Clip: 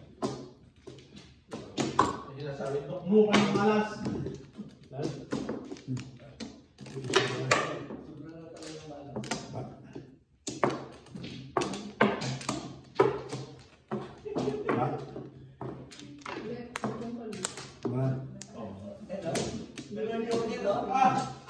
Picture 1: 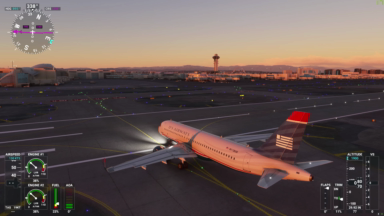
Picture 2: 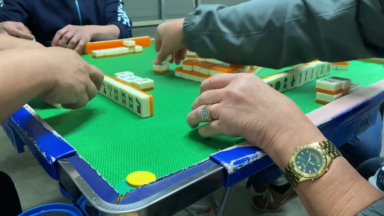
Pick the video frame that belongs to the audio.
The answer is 2